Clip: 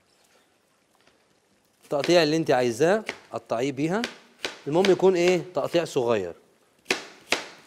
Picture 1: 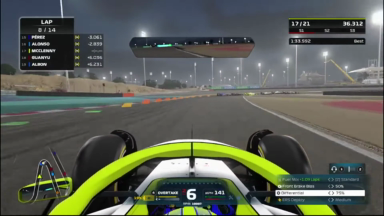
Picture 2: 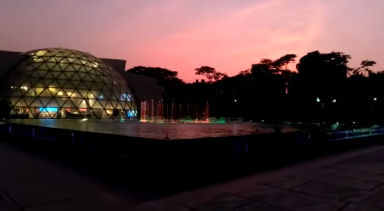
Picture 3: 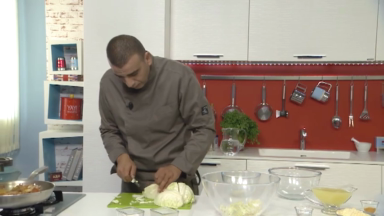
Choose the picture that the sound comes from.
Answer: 3